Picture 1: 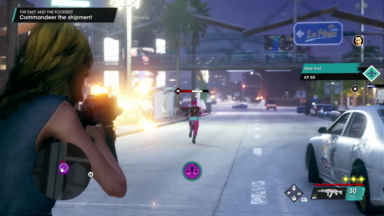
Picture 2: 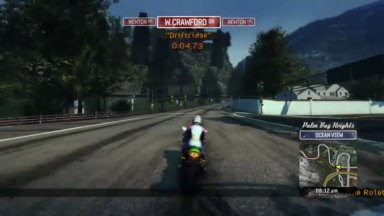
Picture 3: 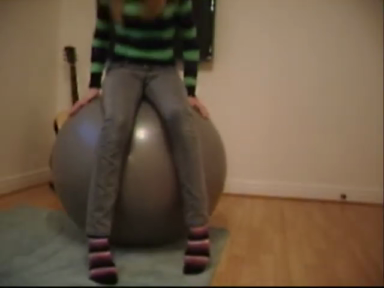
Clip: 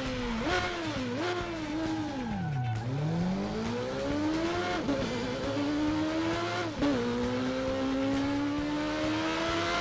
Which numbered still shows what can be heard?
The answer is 2